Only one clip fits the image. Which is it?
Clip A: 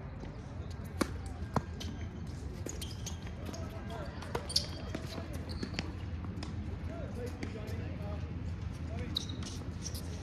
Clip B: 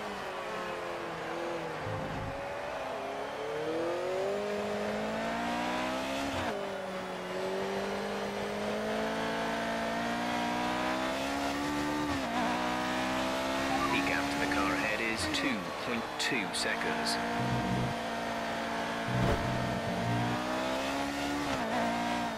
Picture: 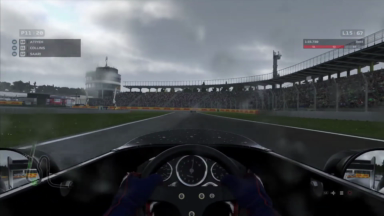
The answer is B